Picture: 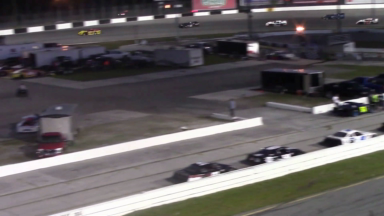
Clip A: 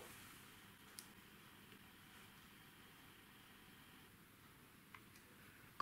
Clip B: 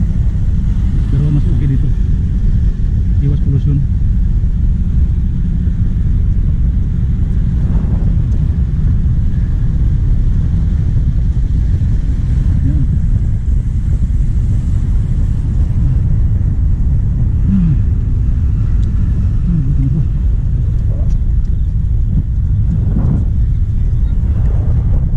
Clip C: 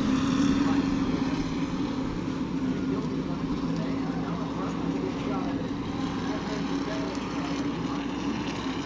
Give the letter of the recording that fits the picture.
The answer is C